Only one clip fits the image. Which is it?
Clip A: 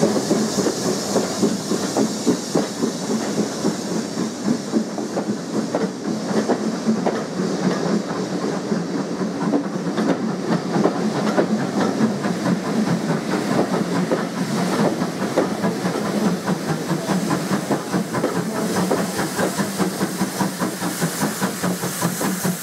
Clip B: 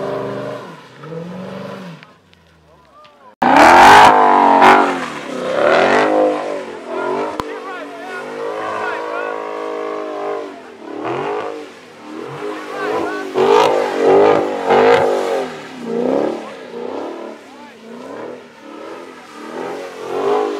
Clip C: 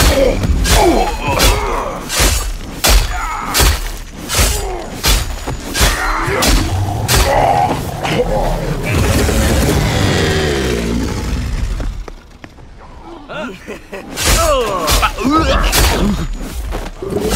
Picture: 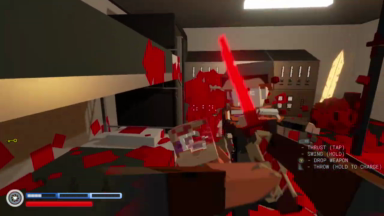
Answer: C